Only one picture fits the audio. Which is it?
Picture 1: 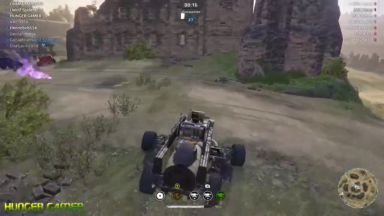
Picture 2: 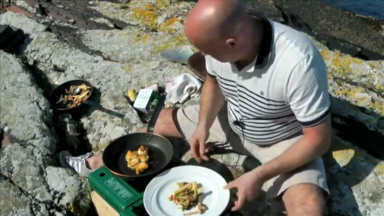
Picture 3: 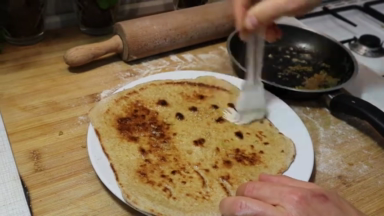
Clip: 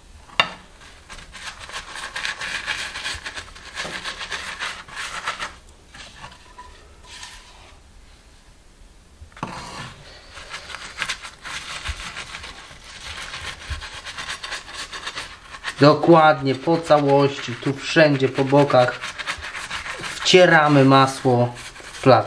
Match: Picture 3